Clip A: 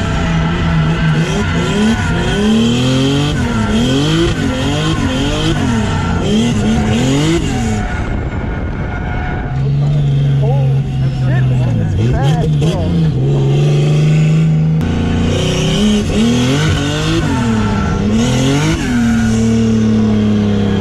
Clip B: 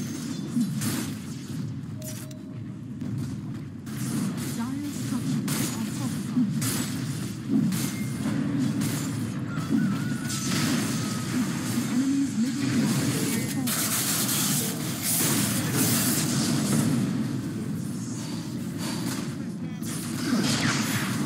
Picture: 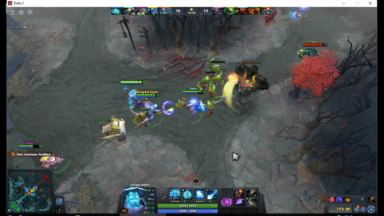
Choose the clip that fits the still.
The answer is B